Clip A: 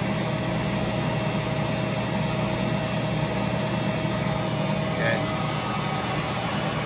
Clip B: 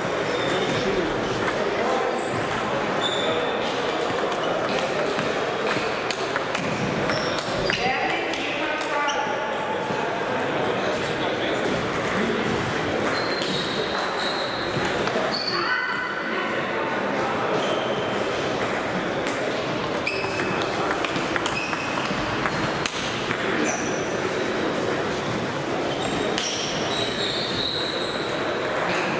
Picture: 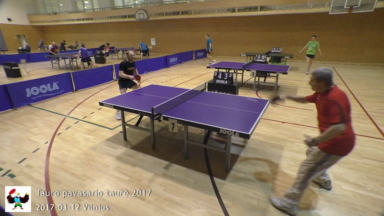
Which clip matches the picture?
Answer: B